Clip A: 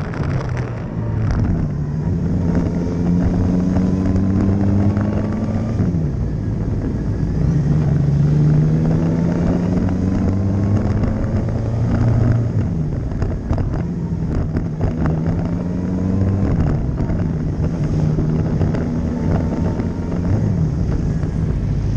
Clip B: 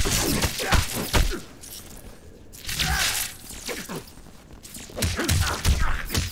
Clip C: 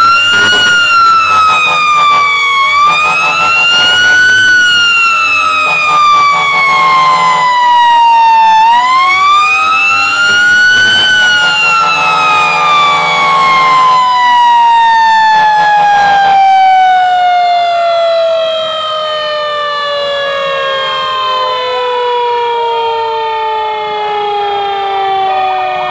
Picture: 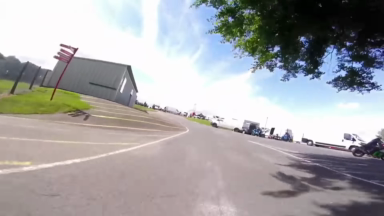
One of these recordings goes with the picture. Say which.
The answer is A